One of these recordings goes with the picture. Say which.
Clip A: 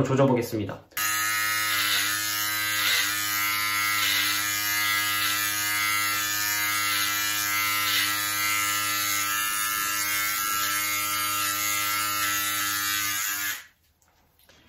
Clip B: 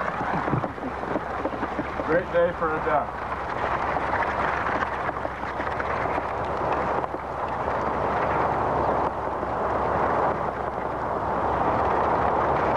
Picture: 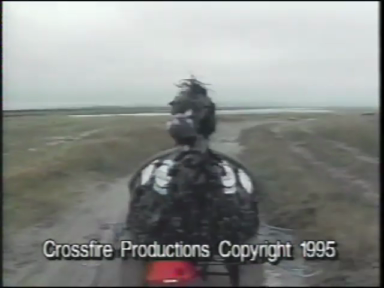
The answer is B